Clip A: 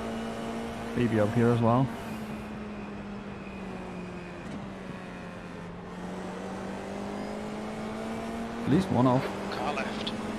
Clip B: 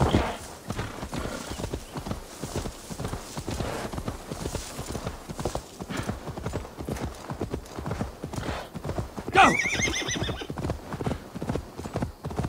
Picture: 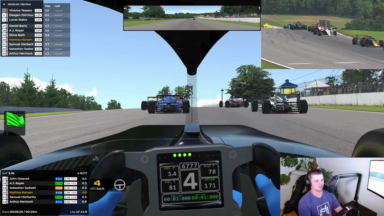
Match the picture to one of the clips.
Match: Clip A